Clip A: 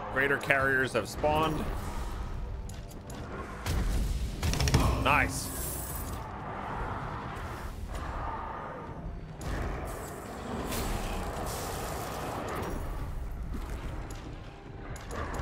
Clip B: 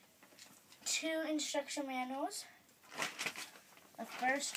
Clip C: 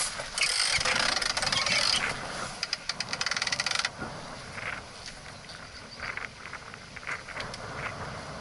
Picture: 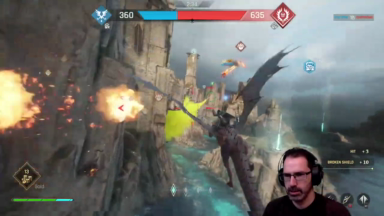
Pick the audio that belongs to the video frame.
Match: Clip A